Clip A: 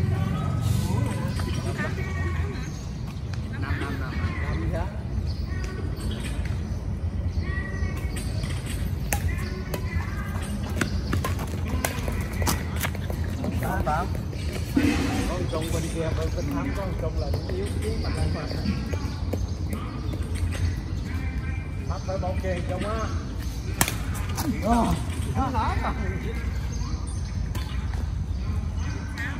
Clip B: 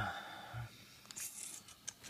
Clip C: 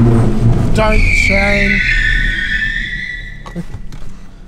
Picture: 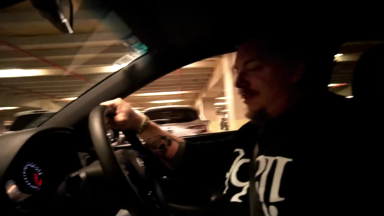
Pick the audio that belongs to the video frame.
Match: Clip C